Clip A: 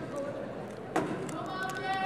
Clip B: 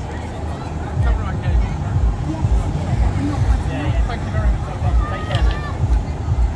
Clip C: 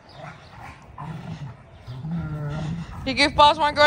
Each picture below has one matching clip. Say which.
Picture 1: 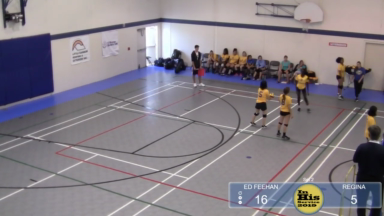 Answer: A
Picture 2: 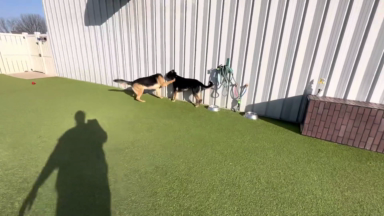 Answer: C